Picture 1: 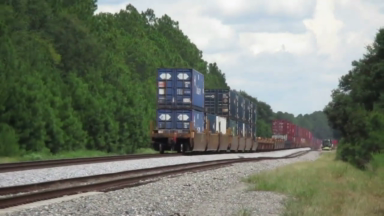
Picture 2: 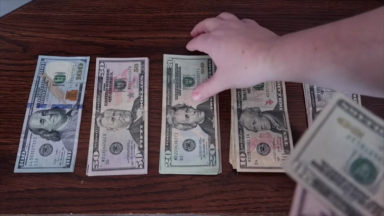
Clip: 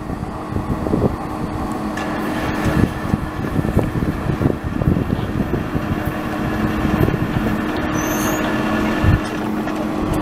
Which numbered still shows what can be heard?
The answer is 1